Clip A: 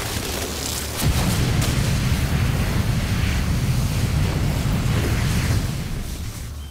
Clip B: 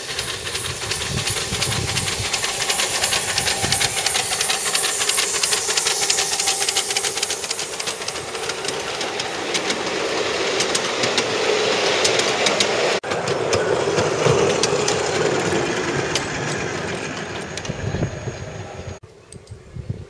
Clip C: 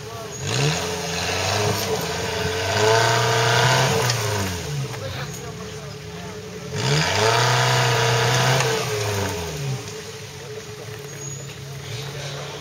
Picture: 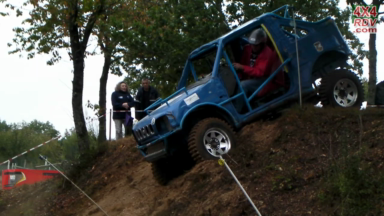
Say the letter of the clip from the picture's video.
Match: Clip C